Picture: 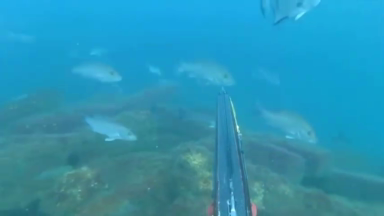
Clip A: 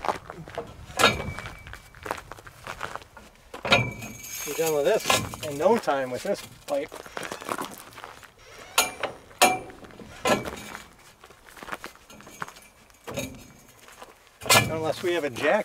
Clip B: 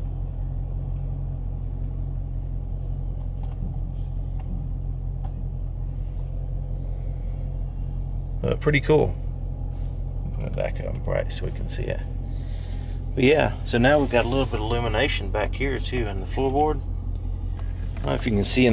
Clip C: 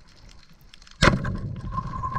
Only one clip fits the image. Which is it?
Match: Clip C